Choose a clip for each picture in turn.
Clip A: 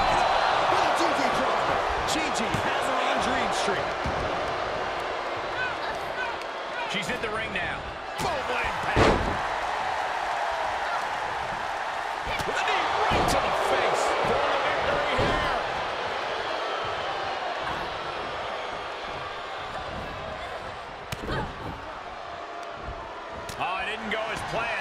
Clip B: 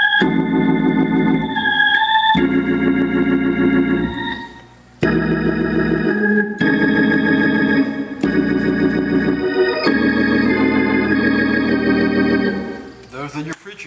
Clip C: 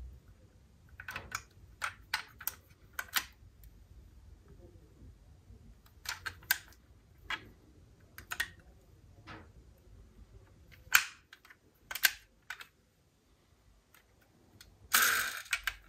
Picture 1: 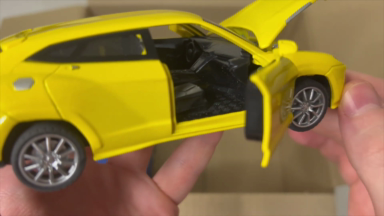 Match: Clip C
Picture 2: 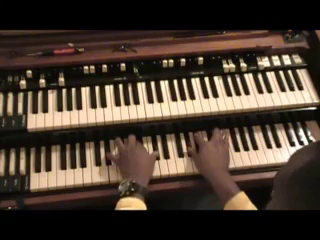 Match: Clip B